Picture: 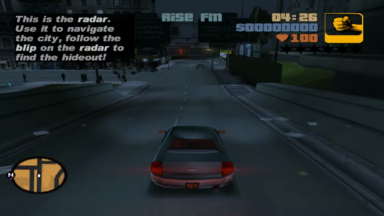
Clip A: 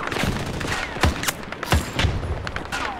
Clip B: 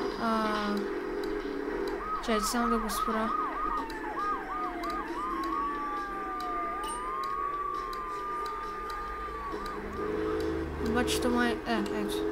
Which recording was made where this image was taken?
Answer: B